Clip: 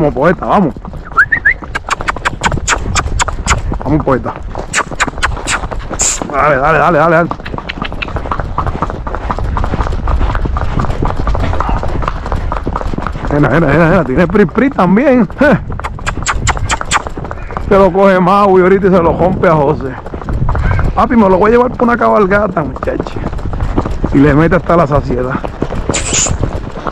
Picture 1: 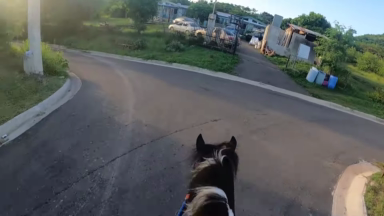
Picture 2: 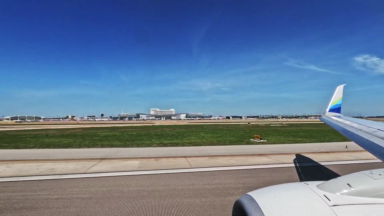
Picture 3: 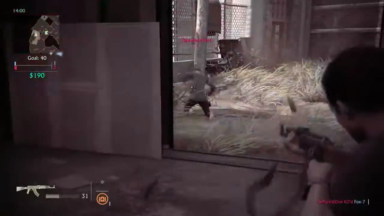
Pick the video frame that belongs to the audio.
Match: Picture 1